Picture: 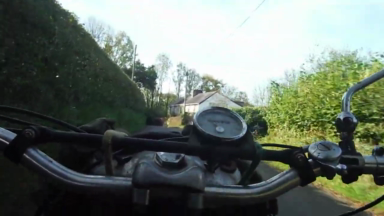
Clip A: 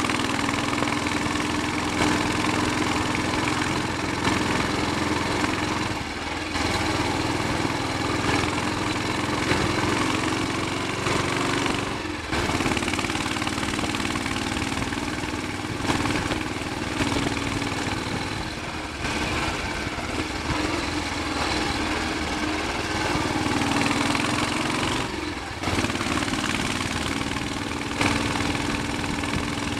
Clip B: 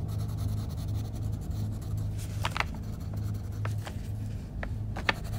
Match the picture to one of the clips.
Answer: A